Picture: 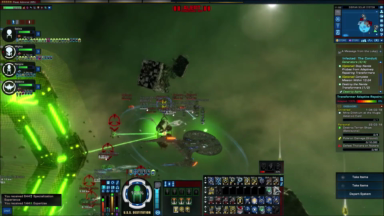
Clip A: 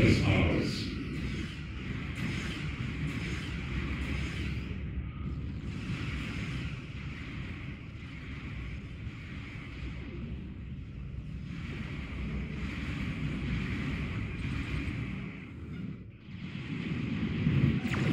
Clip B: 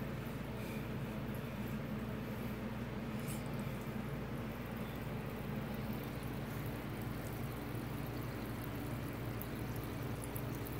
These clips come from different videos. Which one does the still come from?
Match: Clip A